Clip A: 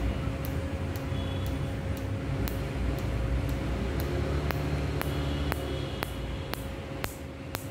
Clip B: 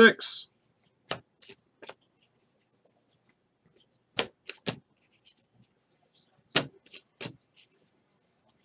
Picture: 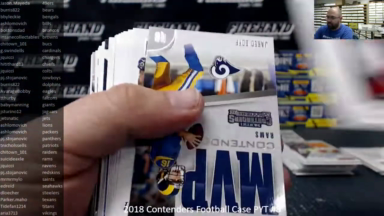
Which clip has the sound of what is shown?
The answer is B